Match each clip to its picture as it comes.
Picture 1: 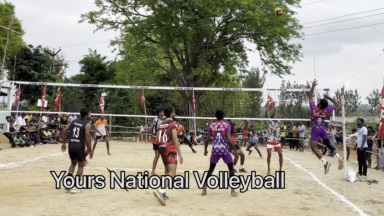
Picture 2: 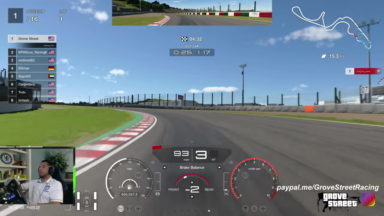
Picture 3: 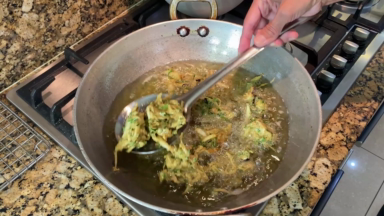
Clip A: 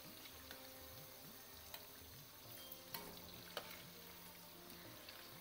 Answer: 3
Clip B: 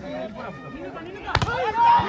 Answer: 1